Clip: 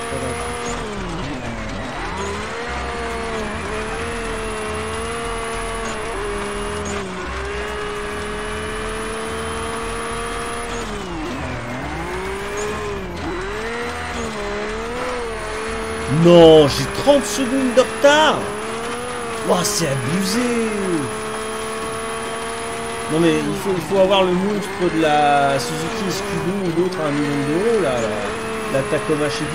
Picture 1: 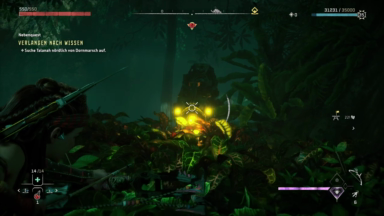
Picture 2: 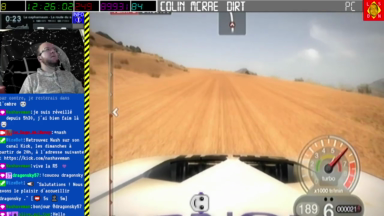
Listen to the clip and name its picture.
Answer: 2